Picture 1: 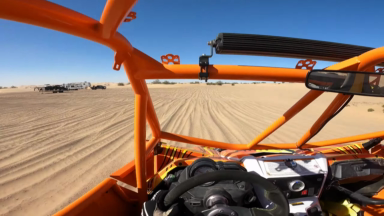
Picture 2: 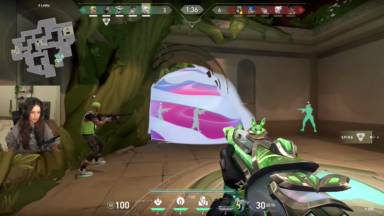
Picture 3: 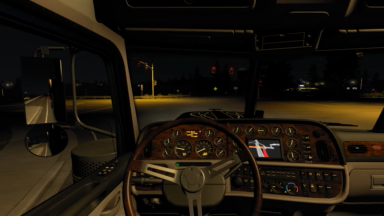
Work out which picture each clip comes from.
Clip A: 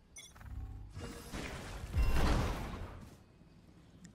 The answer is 2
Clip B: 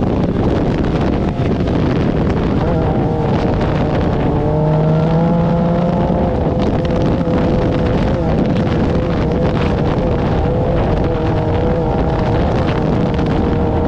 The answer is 1